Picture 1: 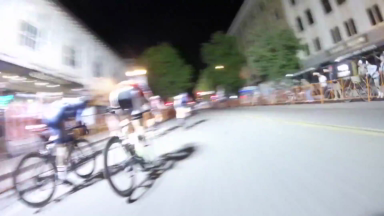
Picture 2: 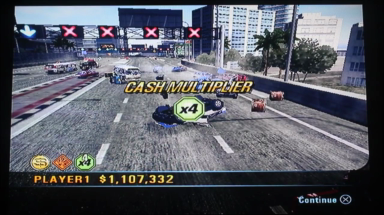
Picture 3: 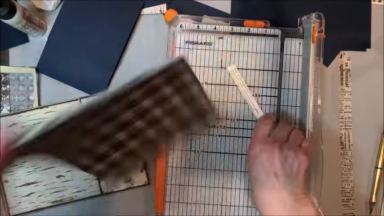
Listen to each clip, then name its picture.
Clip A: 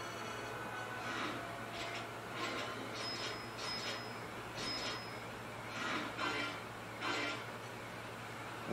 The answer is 2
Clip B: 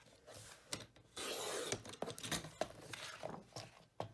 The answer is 3